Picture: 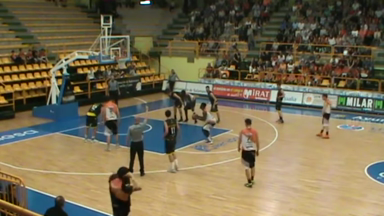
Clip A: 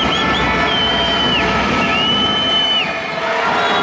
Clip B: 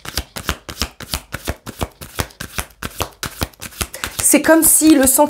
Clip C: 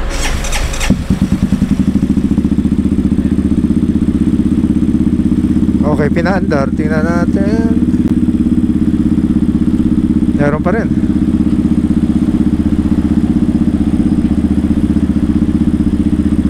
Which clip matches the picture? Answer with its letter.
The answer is A